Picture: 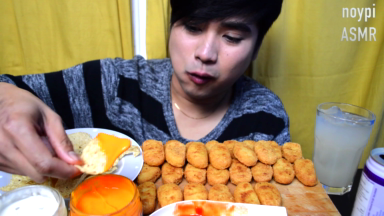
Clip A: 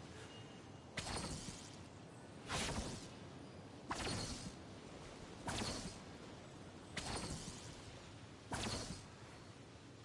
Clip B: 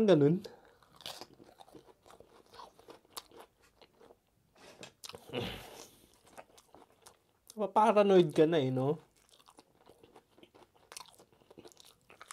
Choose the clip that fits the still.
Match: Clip B